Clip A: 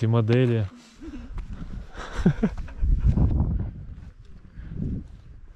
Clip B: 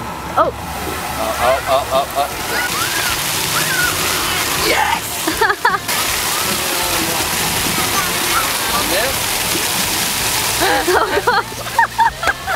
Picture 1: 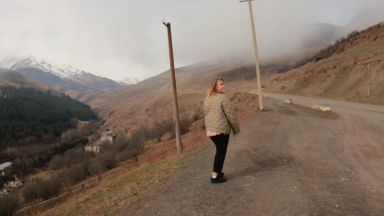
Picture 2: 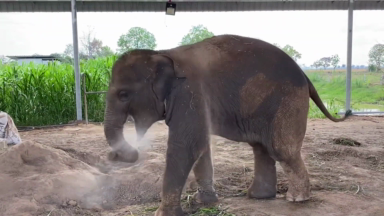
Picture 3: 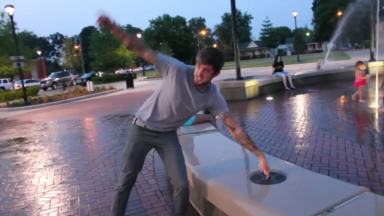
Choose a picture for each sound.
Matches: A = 1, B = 3